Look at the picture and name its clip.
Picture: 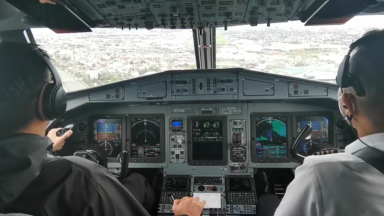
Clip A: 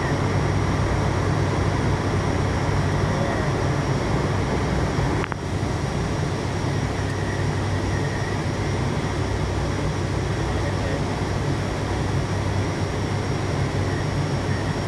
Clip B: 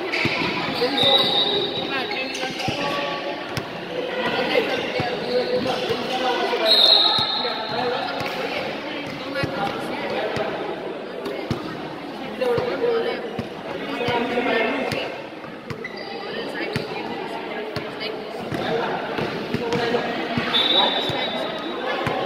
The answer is A